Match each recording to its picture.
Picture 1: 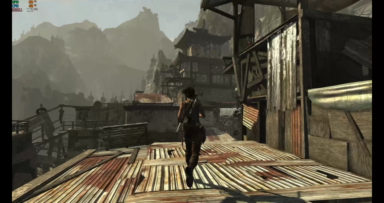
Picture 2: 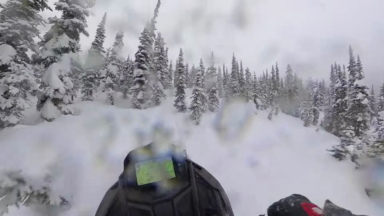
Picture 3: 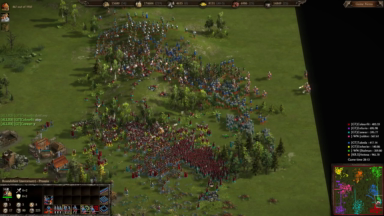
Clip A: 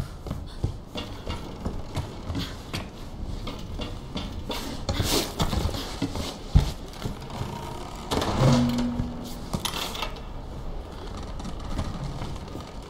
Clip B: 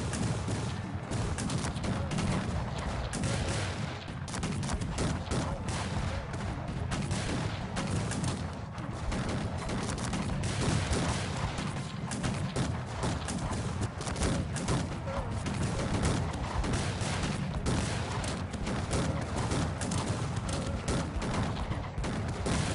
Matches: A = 1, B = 3